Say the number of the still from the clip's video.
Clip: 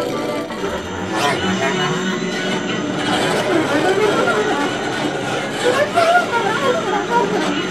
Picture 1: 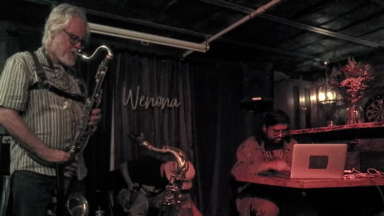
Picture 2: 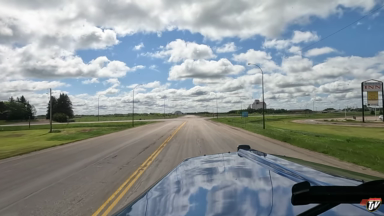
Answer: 1